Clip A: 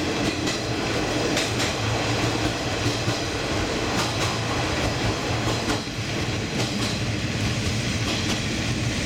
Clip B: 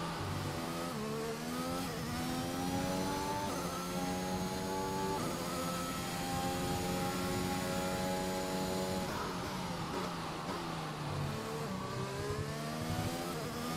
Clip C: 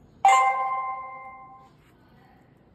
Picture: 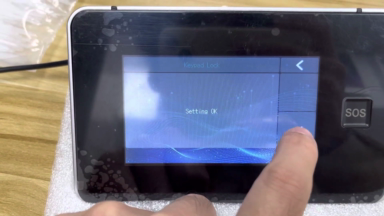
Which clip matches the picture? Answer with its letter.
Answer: C